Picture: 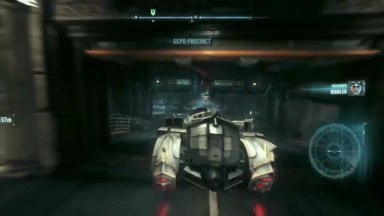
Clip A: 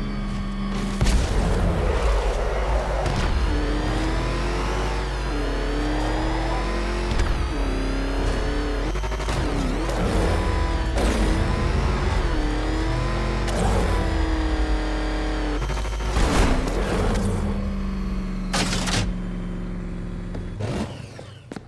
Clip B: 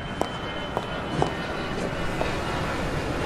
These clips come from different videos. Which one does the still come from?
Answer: A